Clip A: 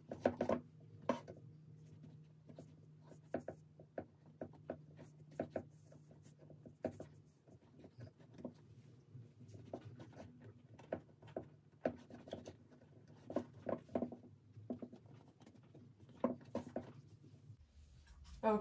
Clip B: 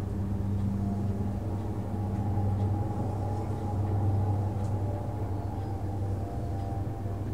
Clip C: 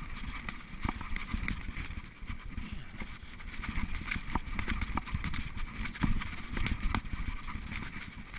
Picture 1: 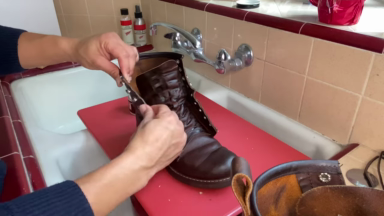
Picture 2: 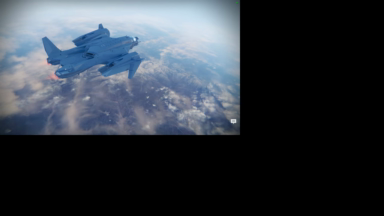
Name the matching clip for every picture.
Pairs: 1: A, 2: B